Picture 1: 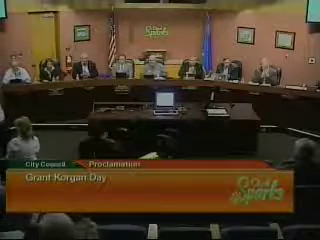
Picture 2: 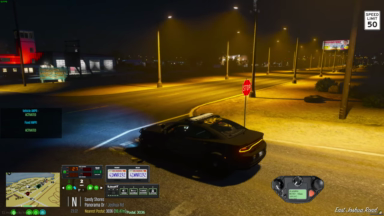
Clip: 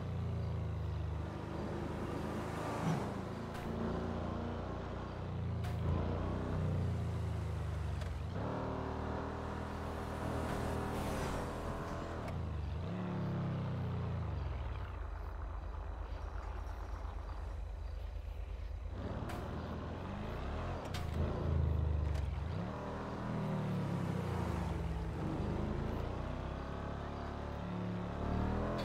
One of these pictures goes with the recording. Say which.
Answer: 2